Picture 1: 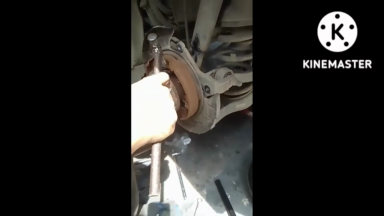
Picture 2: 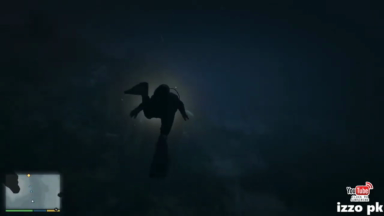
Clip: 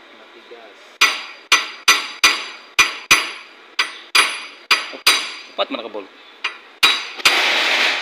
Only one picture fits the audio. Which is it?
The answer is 1